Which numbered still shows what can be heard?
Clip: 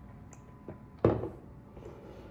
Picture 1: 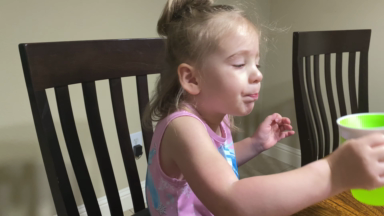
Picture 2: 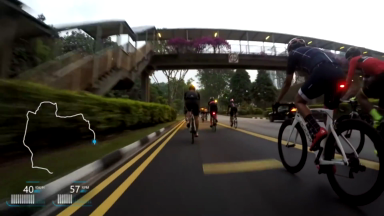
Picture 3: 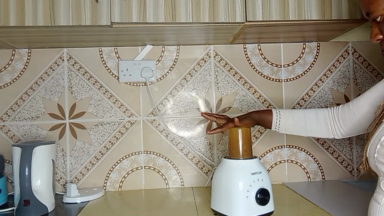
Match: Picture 1